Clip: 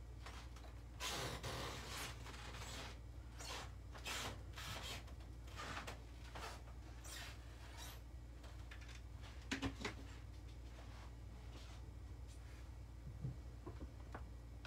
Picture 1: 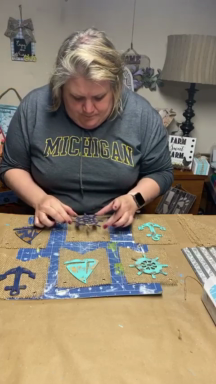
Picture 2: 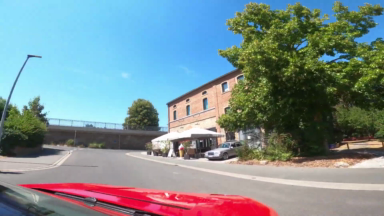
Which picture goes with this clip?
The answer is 1